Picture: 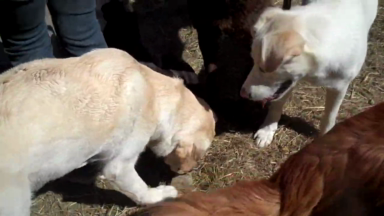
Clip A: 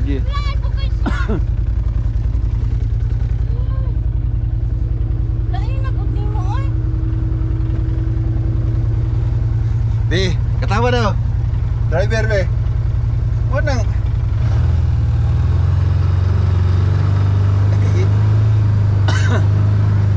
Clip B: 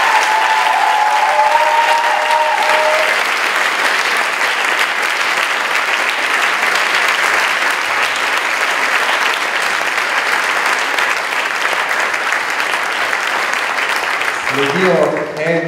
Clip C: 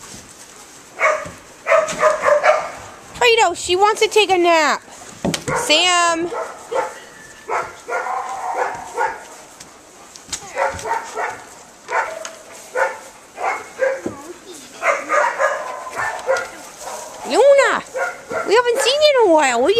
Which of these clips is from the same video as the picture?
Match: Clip C